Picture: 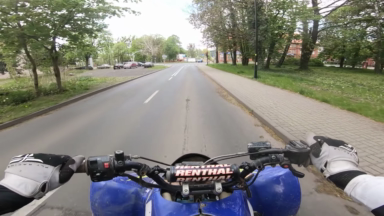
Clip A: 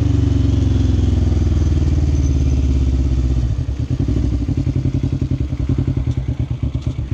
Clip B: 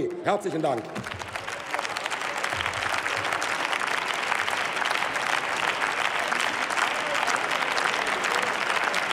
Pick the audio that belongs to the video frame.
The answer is A